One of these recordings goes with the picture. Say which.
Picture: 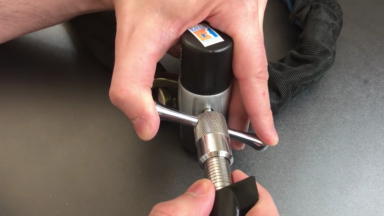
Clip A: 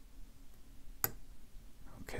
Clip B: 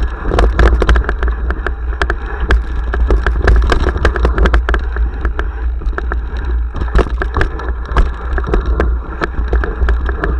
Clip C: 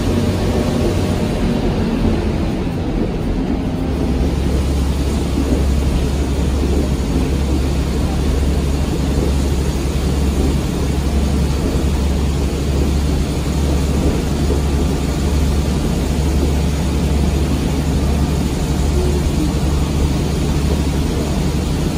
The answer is A